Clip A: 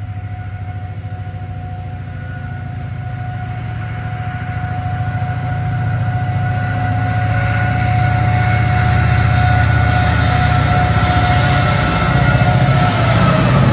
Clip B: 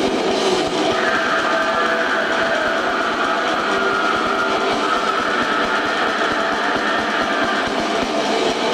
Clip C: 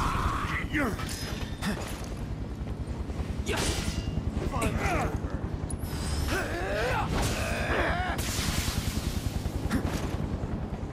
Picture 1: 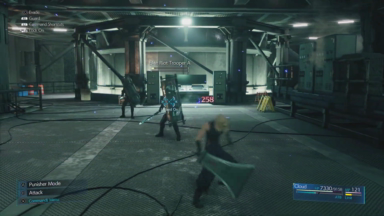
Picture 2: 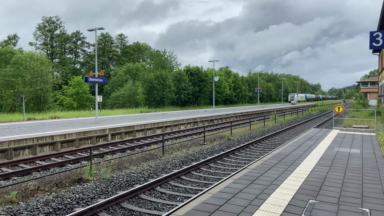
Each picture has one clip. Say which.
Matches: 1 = C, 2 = A